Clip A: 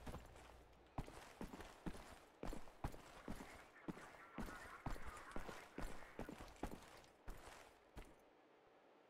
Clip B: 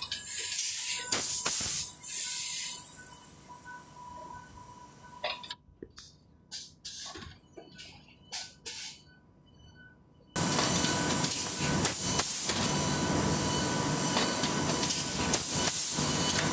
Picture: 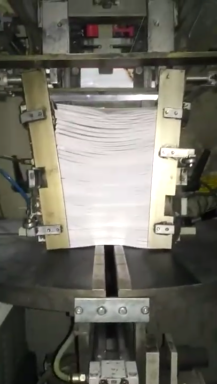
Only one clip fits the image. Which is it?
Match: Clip B